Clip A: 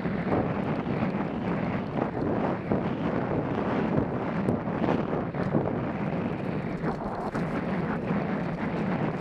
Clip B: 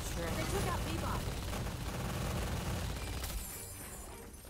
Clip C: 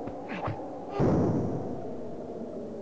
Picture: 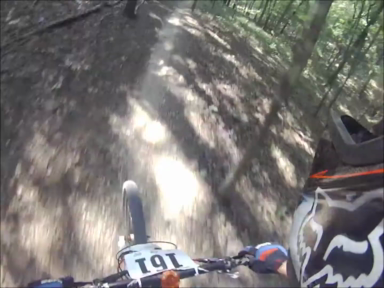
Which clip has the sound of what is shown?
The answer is A